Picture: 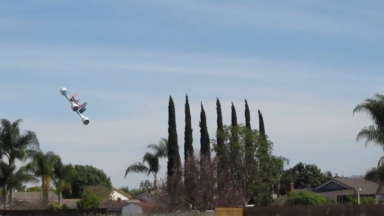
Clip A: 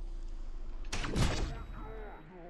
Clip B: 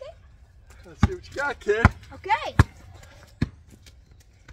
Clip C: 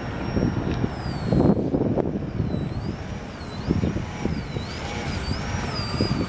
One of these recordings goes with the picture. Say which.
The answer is C